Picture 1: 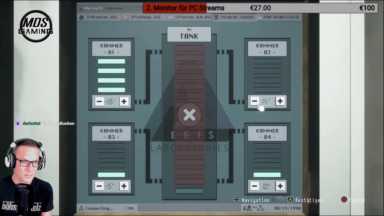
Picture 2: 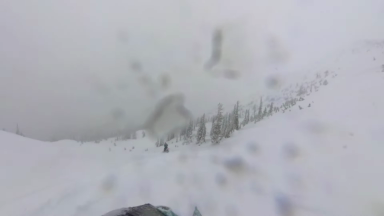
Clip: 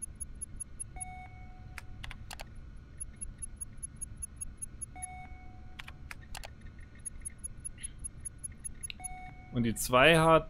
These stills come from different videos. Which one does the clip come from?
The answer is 1